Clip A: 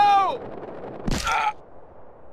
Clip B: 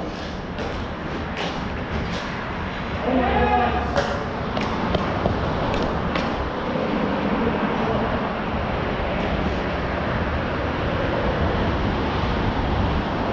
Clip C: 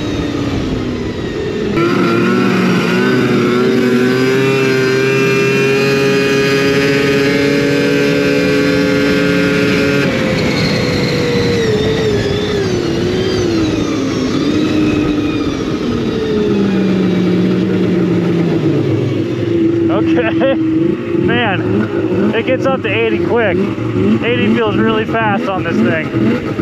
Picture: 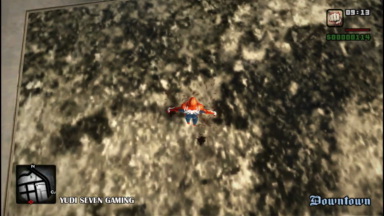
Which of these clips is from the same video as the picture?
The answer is A